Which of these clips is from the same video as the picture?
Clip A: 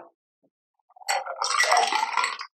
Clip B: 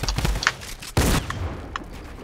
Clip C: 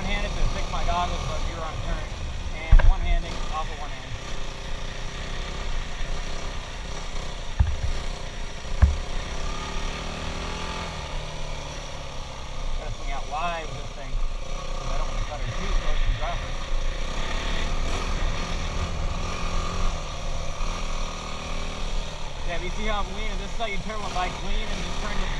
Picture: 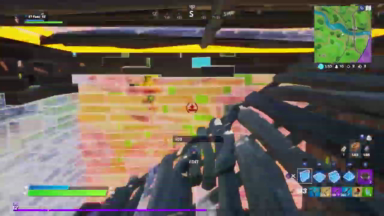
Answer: B